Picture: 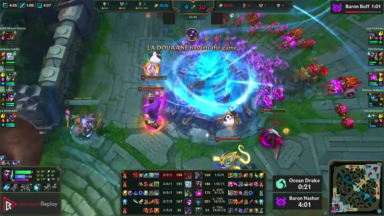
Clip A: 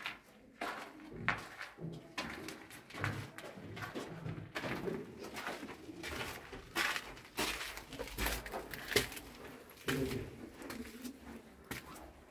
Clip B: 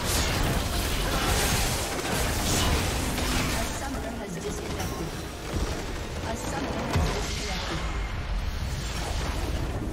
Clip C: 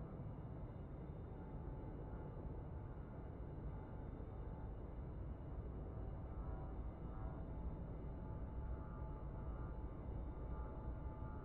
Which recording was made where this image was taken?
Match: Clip B